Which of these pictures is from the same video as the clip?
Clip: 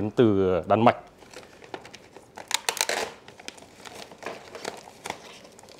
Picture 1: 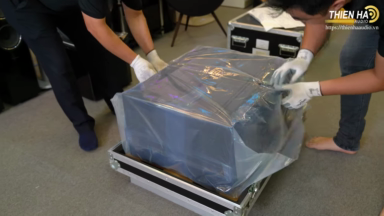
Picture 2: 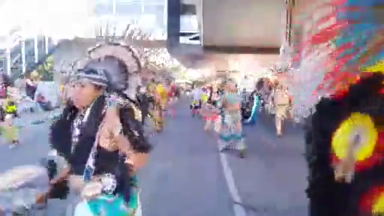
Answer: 1